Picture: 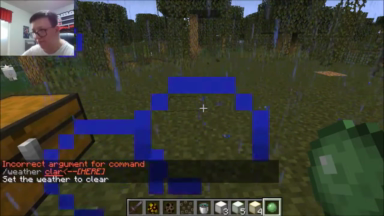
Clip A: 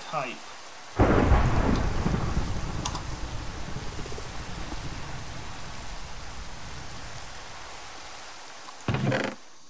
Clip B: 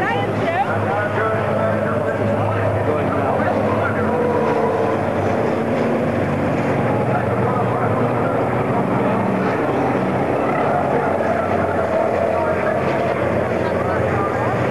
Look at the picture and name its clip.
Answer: A